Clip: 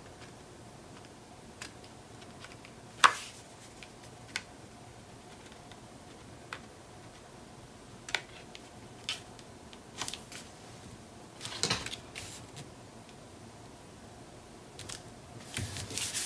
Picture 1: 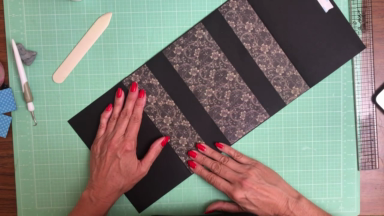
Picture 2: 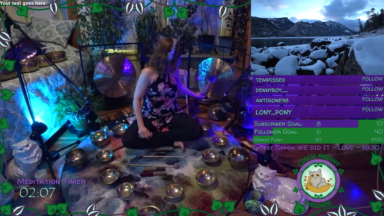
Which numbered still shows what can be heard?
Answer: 1